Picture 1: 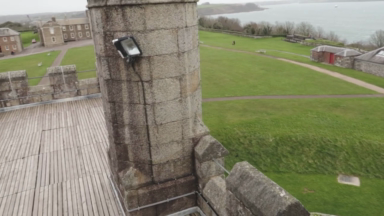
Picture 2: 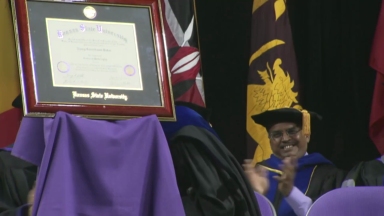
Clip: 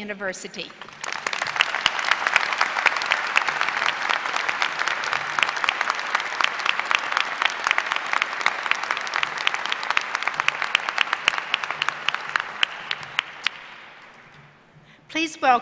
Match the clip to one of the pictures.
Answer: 2